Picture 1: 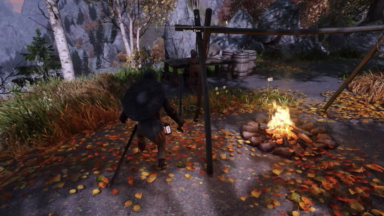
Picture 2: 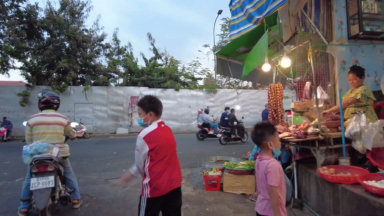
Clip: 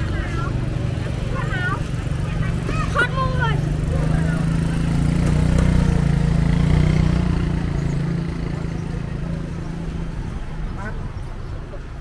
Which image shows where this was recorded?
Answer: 2